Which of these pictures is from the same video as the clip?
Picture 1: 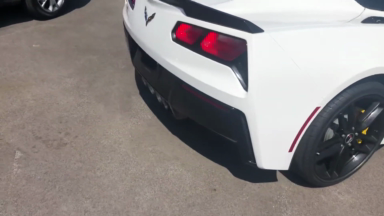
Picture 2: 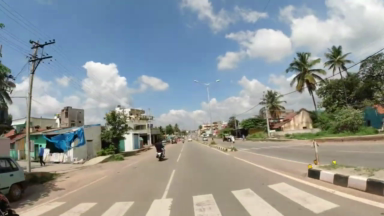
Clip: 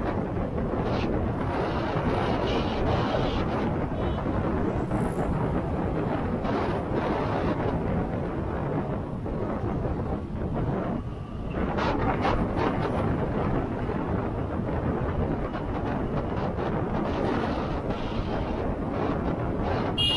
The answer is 2